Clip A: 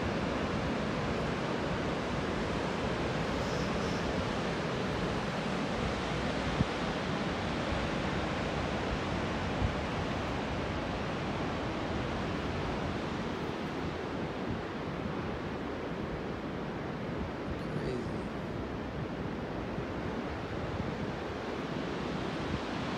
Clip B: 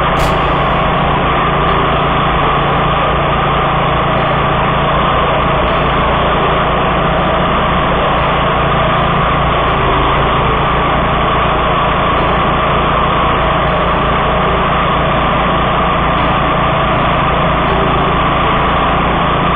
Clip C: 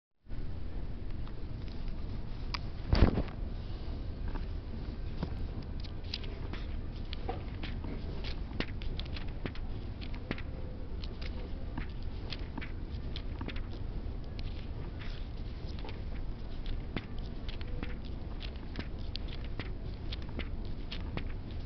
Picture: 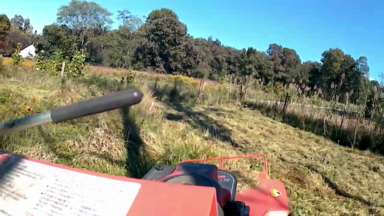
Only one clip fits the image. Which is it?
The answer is B